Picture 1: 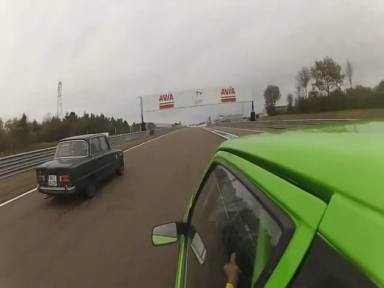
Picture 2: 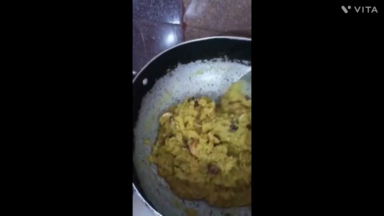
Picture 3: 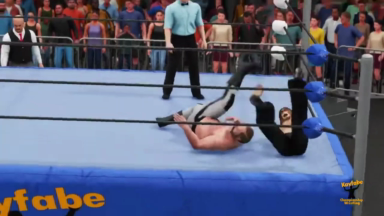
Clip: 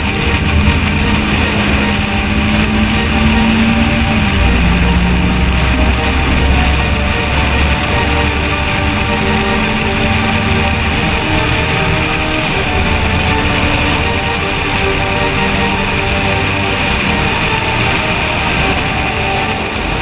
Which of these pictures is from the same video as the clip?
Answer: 1